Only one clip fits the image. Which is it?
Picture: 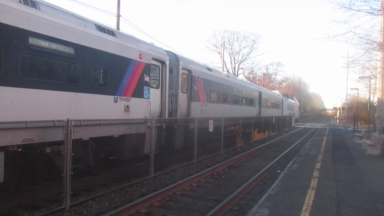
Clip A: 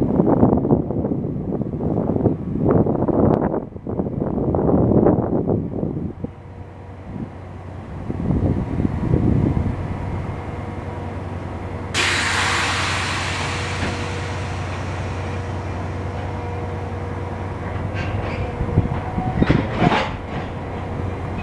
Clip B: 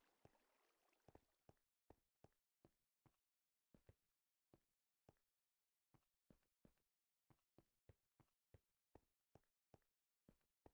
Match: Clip A